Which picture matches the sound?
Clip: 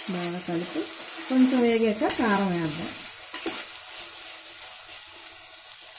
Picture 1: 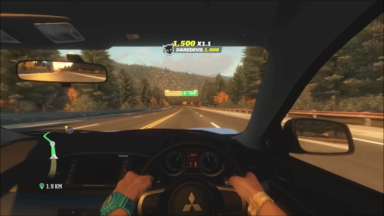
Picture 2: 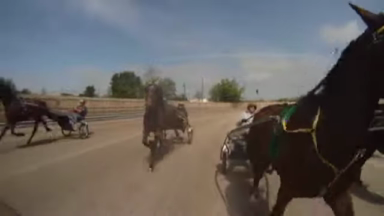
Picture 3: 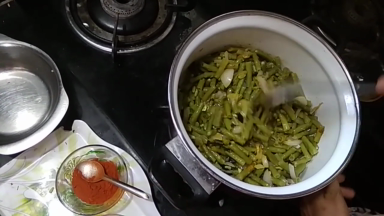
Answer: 3